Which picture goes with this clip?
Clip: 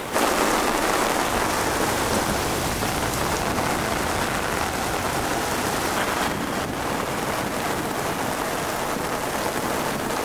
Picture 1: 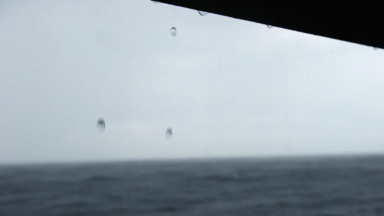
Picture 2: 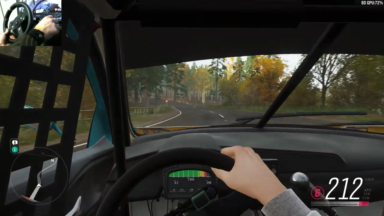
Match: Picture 1